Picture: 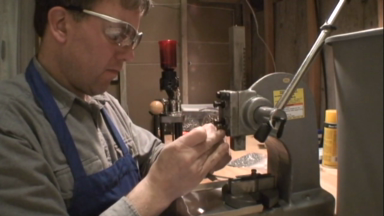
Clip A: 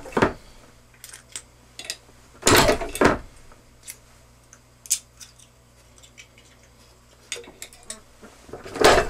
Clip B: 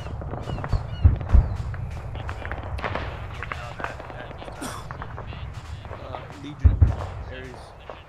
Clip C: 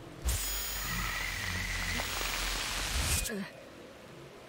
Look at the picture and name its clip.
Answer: A